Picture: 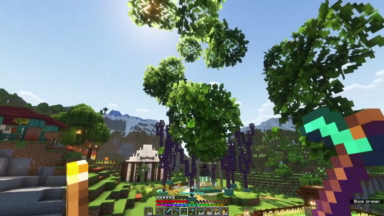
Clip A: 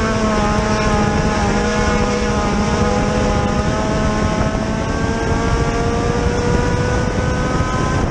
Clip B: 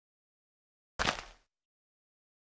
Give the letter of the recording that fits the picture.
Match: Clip B